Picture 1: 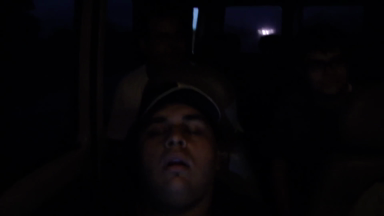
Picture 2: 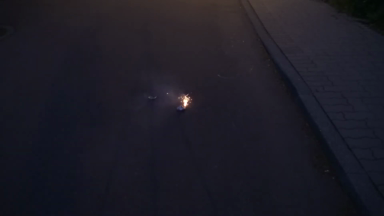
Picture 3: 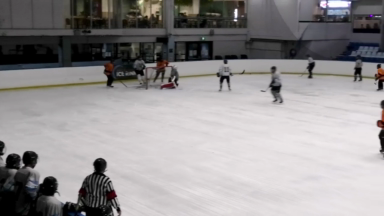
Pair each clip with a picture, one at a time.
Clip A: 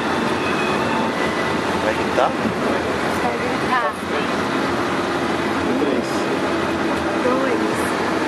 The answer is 1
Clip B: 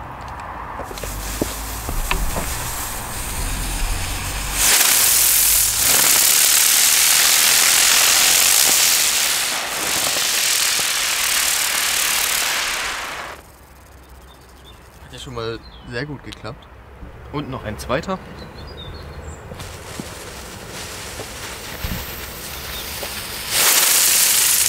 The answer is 2